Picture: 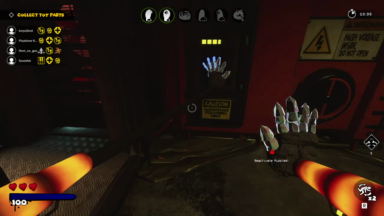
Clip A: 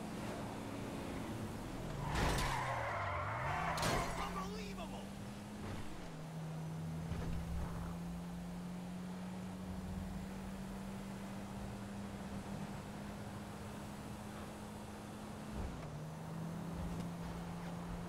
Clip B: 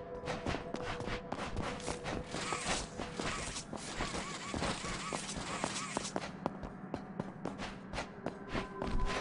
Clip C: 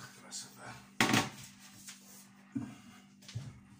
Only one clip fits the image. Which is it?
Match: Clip B